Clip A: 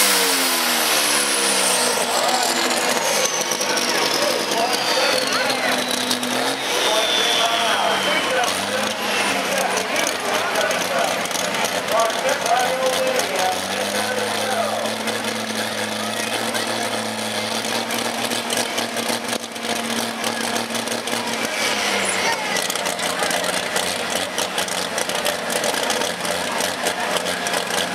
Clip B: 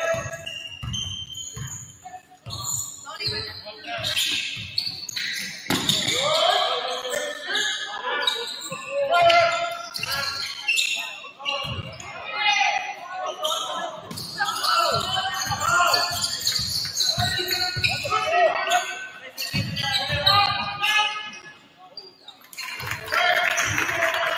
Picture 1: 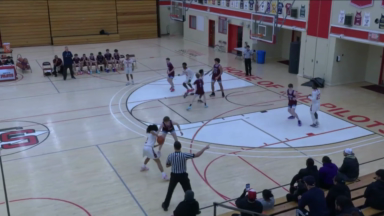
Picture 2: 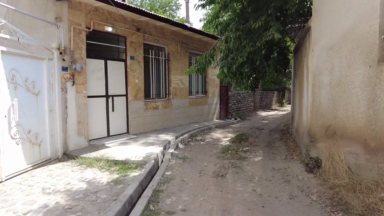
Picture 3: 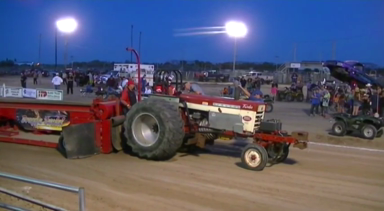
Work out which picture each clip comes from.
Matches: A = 3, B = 1